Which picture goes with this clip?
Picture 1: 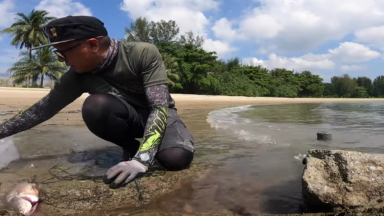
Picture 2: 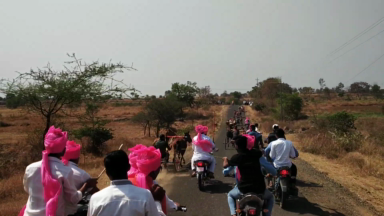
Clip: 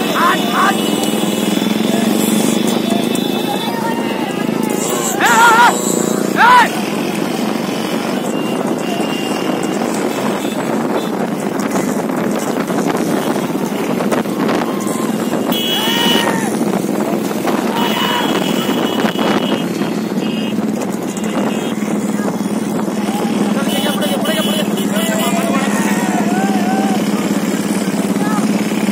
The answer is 2